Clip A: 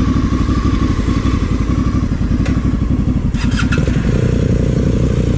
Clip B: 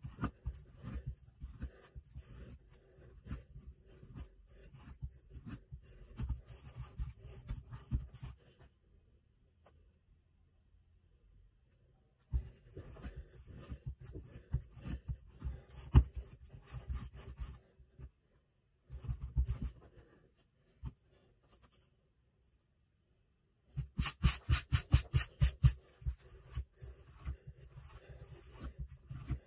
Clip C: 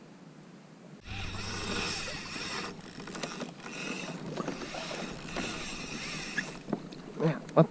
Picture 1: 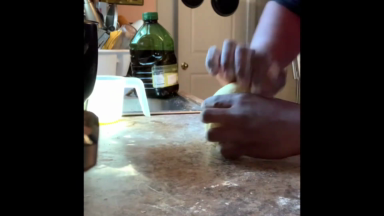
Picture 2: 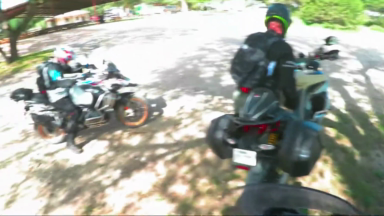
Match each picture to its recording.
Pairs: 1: B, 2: A